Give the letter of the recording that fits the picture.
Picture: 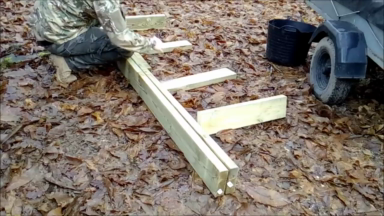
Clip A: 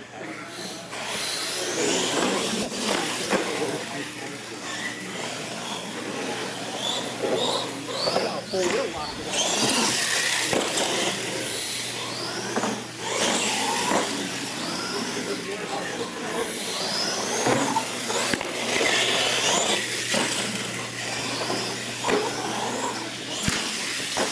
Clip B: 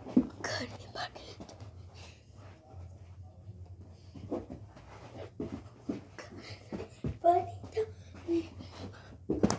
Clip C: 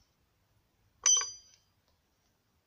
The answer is C